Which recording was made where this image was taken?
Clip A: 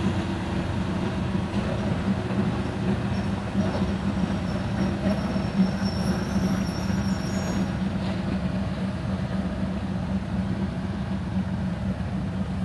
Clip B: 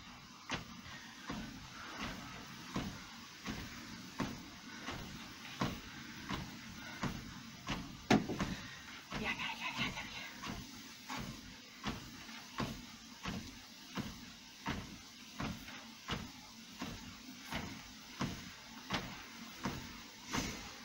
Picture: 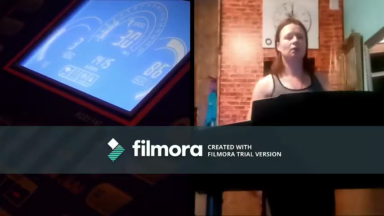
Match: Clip B